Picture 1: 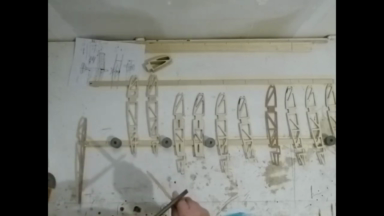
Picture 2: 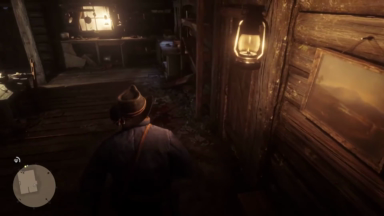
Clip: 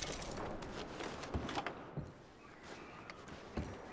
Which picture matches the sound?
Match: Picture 2